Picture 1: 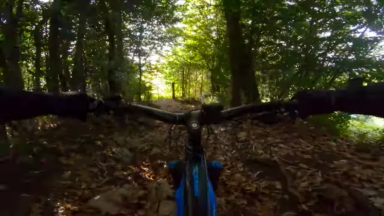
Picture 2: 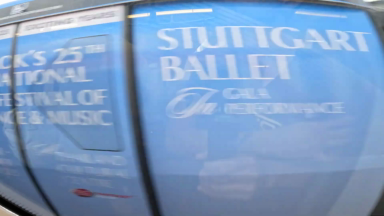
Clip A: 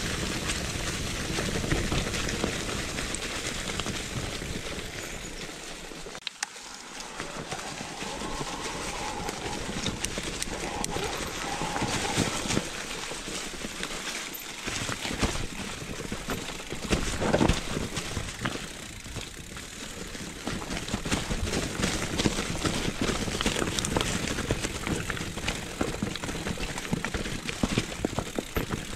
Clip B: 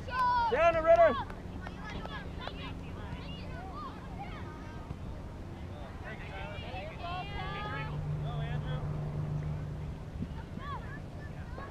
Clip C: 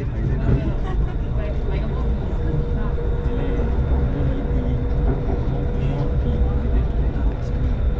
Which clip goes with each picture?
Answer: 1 A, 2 C